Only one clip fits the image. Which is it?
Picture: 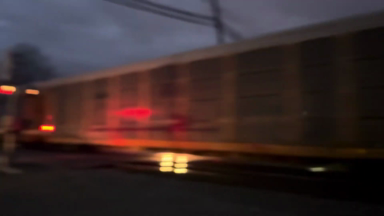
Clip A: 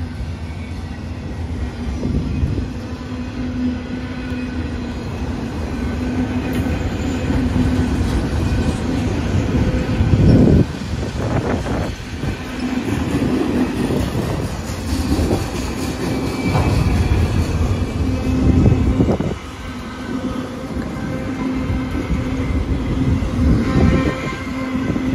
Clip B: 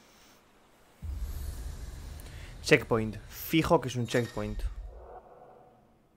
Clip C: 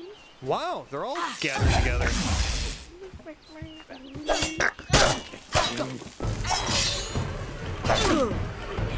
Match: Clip A